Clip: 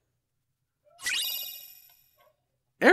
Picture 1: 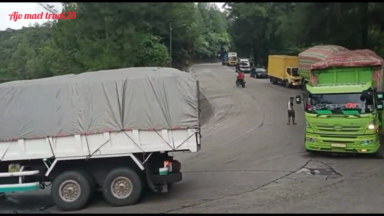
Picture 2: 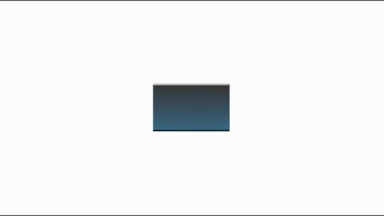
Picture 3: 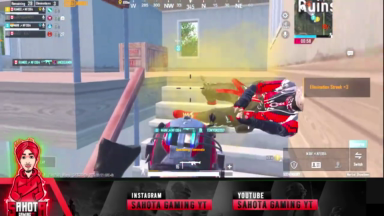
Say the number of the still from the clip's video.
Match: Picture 2